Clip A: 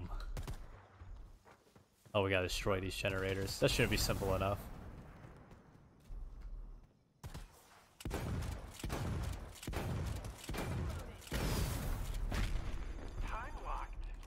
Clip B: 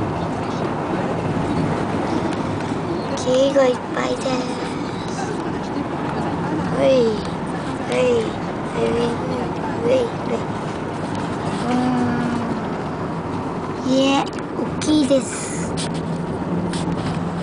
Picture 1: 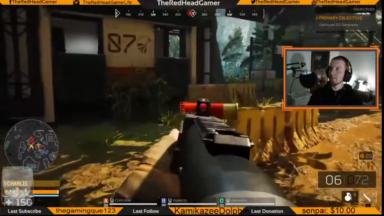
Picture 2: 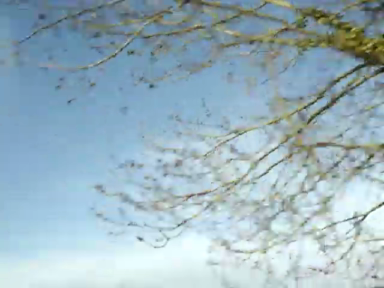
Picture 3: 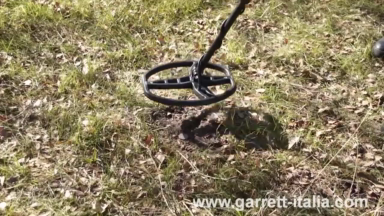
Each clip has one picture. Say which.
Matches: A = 1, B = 2